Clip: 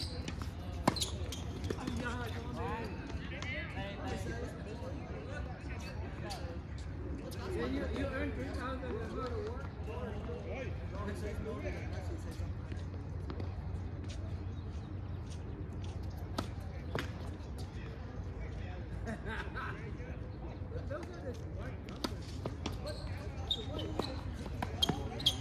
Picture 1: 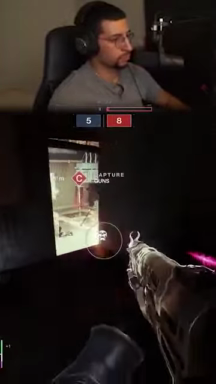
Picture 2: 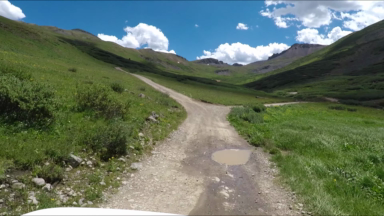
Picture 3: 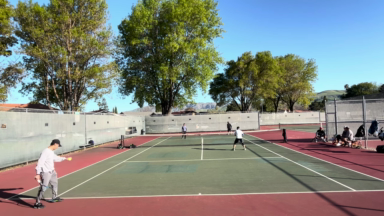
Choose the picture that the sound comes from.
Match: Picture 3